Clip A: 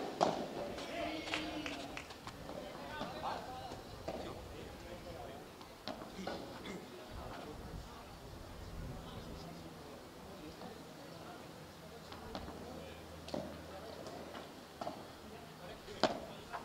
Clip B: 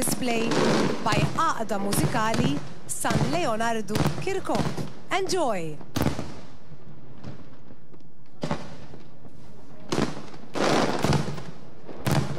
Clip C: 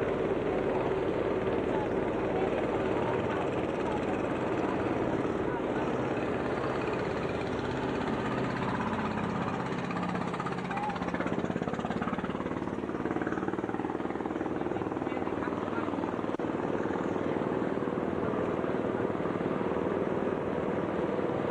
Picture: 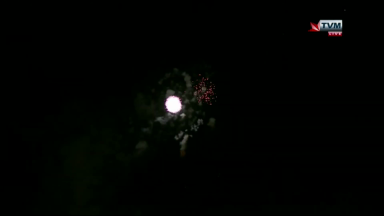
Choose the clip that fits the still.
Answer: B